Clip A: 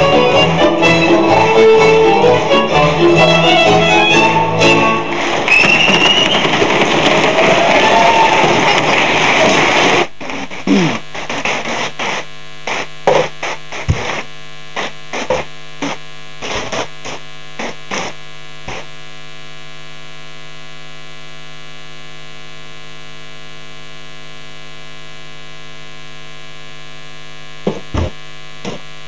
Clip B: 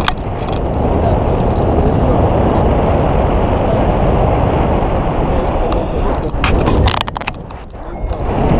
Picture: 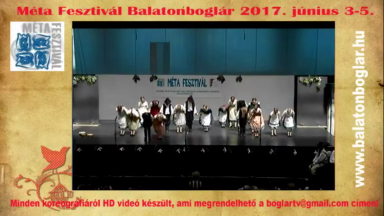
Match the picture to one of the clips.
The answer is A